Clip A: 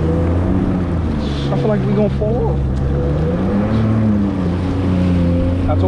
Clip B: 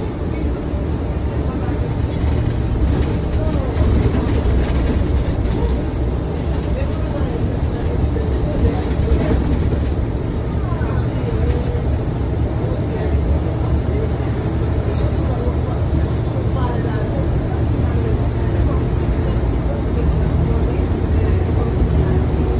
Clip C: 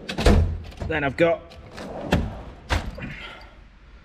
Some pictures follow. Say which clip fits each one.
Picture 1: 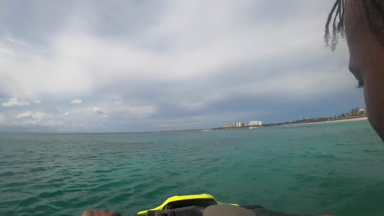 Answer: A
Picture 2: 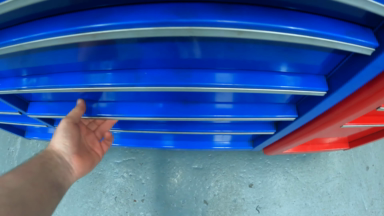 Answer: C